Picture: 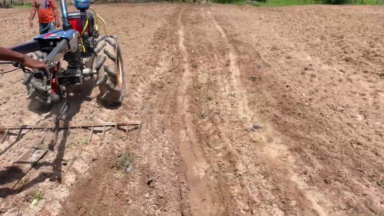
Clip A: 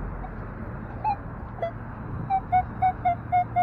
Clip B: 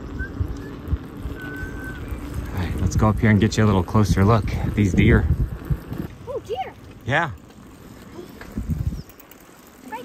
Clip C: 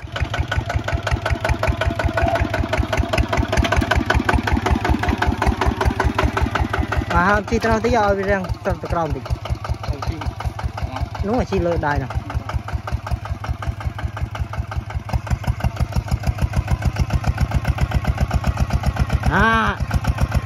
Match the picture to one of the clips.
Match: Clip C